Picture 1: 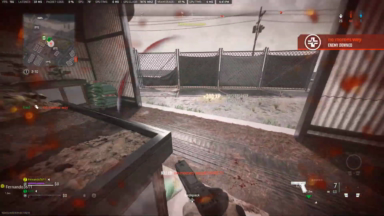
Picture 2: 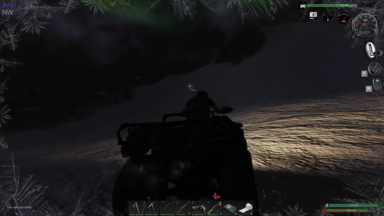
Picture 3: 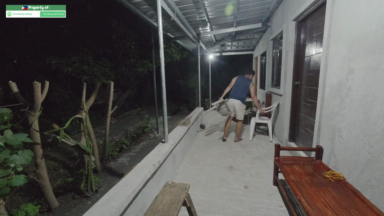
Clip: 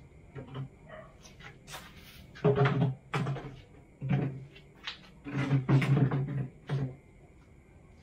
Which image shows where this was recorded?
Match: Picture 3